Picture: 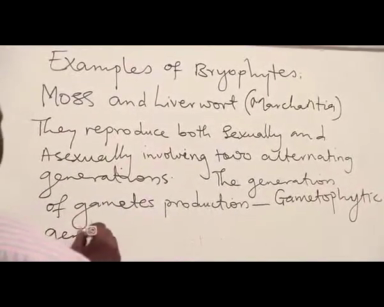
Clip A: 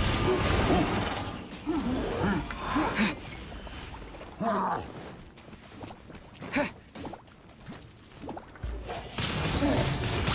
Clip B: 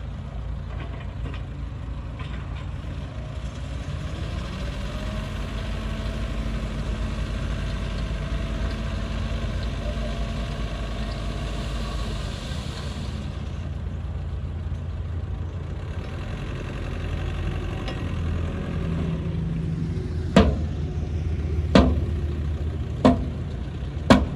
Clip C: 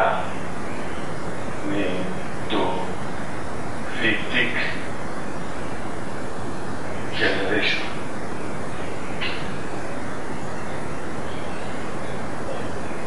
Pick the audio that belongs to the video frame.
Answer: C